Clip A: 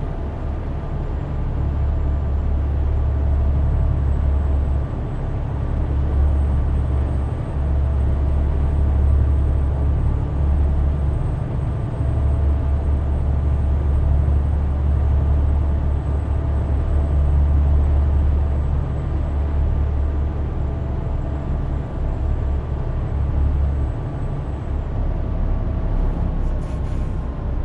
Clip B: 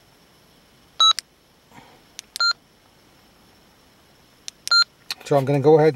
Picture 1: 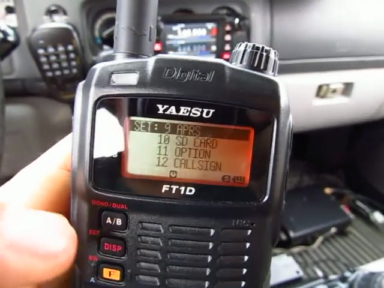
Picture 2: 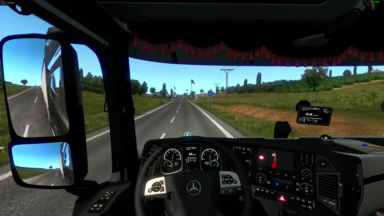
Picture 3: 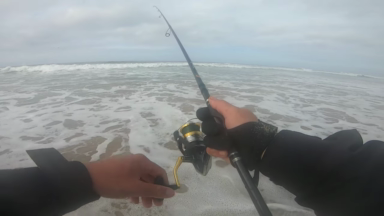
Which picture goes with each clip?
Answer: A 2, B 1